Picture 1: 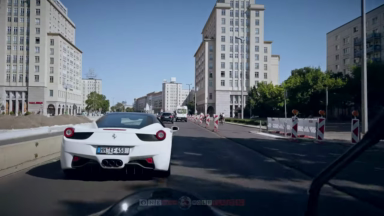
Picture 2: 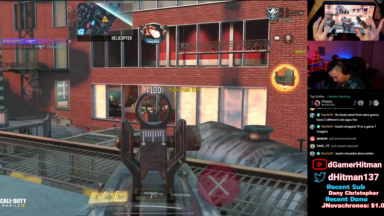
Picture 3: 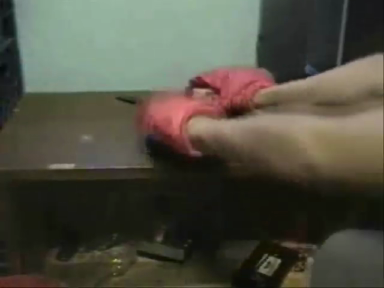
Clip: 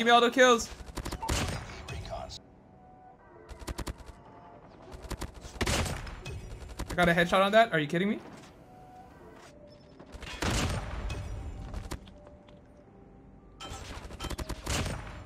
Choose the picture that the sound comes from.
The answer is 2